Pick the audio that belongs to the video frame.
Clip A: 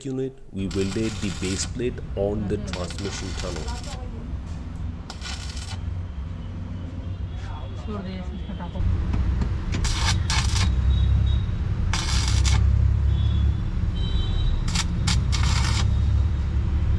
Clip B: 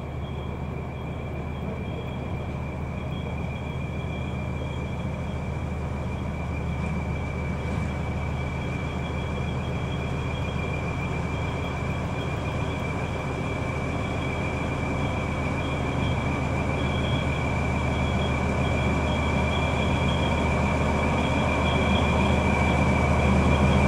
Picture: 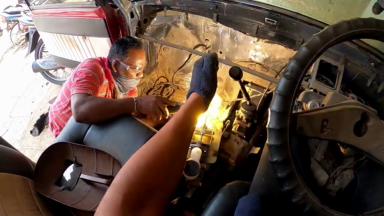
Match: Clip A